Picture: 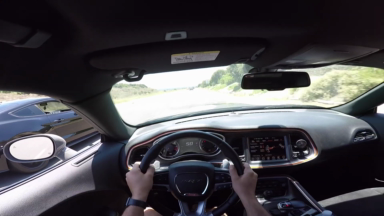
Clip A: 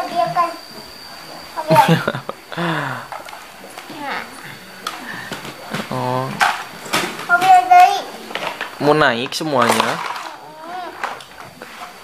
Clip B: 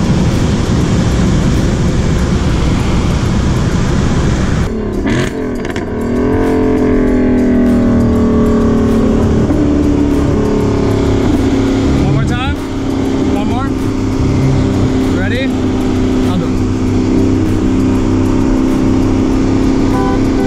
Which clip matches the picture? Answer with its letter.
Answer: B